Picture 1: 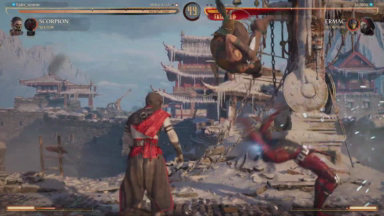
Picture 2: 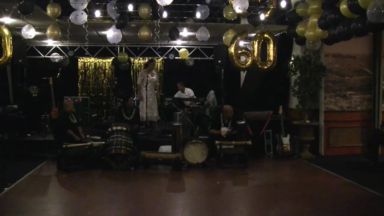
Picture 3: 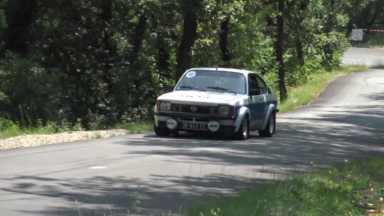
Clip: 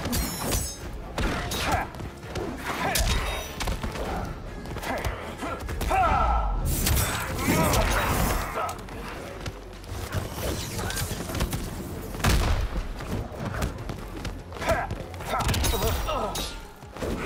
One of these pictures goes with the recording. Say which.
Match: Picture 1